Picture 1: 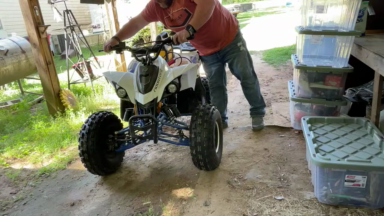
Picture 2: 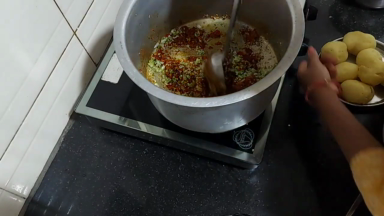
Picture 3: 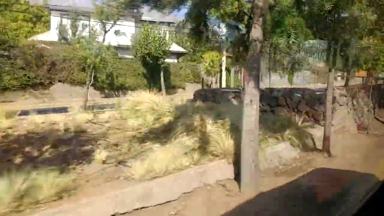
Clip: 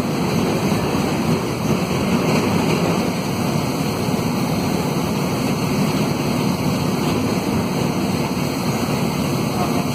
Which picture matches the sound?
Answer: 3